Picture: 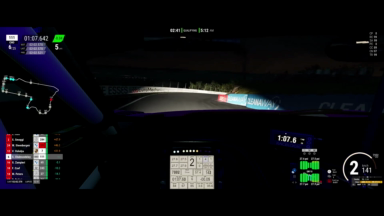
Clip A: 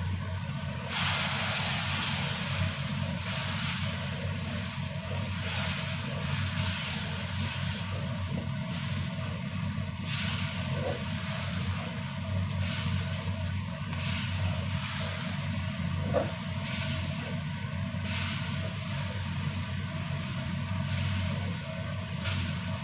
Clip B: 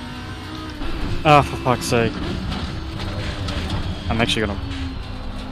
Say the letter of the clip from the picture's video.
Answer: B